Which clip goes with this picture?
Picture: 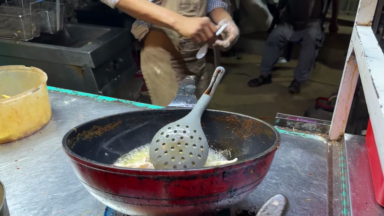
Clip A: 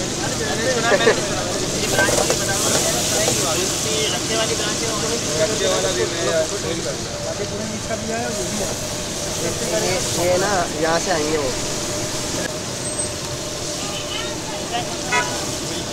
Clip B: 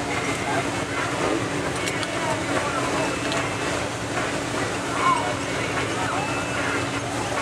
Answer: A